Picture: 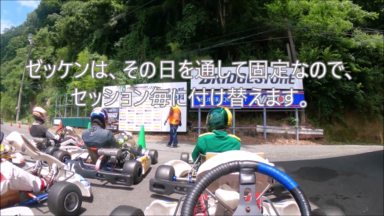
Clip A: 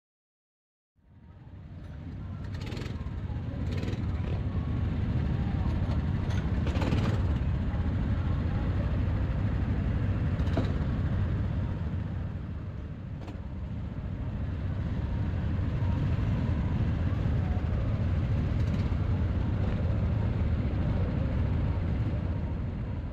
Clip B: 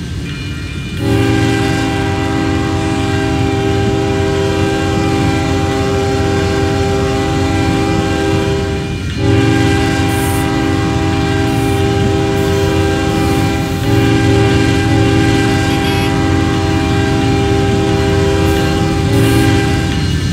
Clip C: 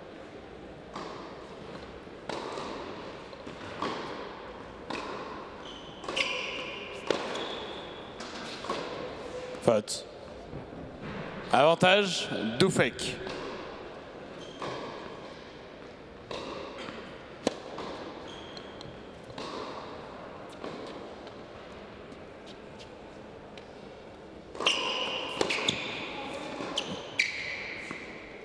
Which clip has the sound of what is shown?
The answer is A